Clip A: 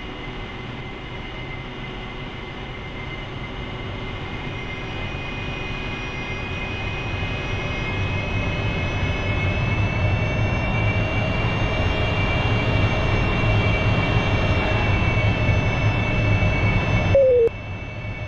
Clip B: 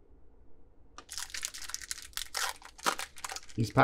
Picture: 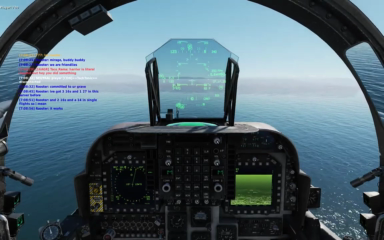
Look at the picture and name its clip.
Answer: A